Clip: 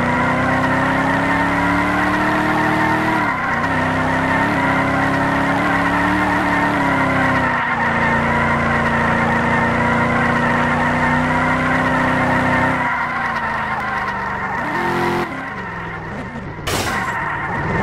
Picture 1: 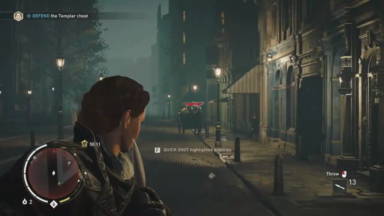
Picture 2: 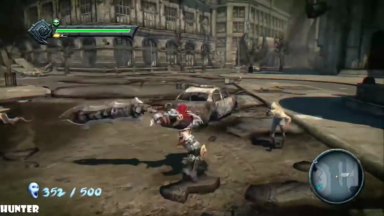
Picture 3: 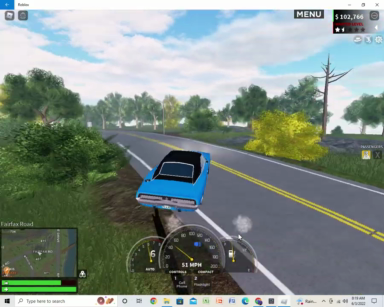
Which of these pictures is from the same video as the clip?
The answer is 3